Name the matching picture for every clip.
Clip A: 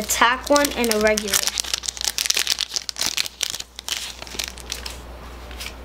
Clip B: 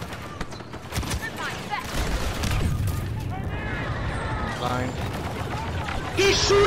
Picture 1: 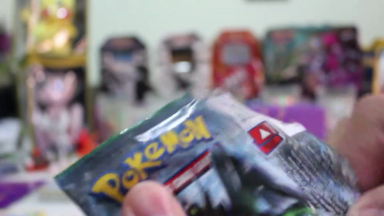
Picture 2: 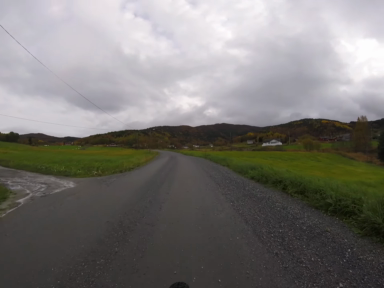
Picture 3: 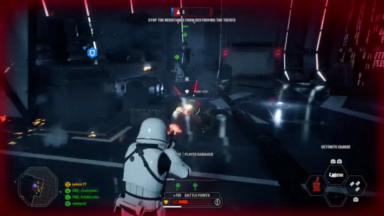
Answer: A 1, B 3